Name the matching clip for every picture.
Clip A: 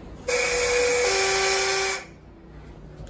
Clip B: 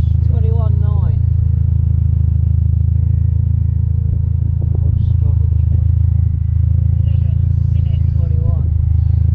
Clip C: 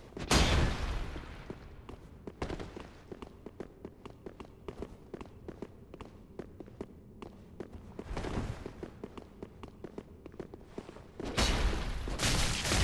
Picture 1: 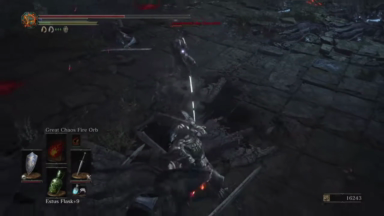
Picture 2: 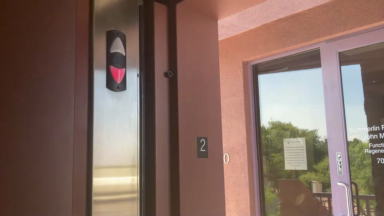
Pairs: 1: C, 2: A